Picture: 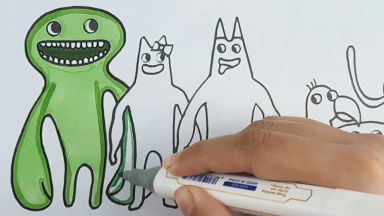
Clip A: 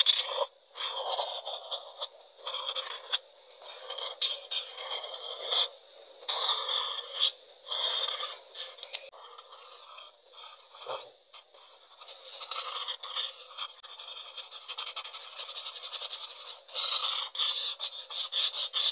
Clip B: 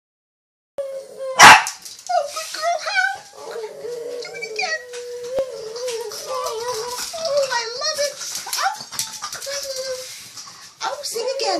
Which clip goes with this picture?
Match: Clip A